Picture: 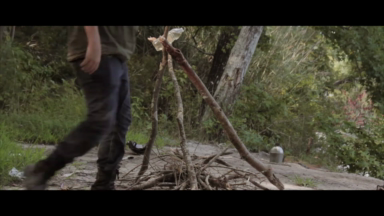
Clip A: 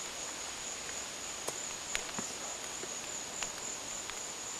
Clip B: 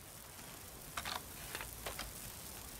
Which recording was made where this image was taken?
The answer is A